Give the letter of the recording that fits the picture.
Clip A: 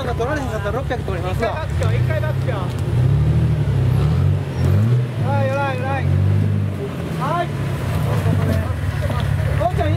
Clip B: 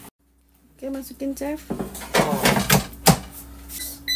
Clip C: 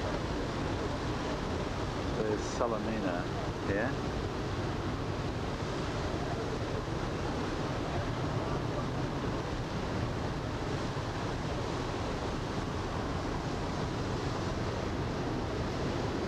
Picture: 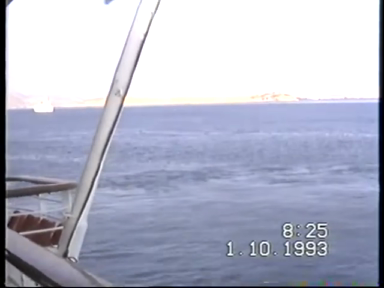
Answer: C